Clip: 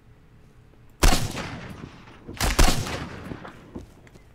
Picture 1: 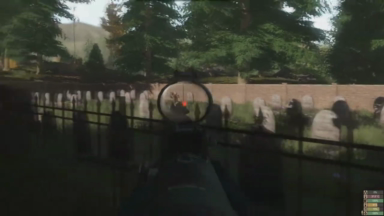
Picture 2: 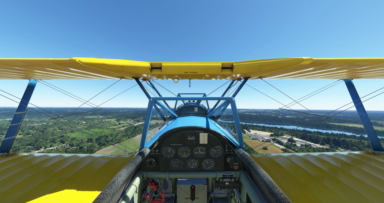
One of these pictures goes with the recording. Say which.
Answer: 1